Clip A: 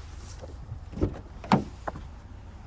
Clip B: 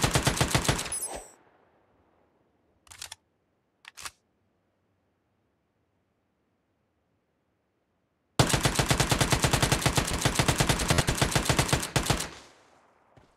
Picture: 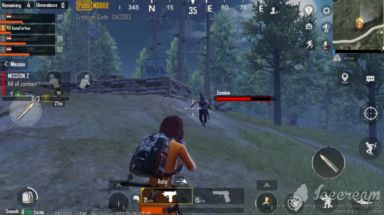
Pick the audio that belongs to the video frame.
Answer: B